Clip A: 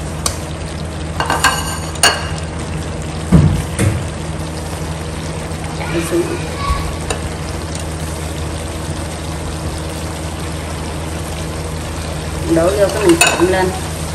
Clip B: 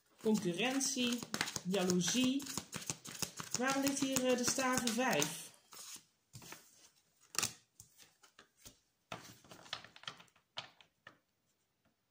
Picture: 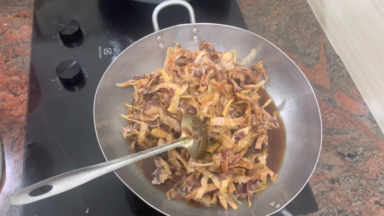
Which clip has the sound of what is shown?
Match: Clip A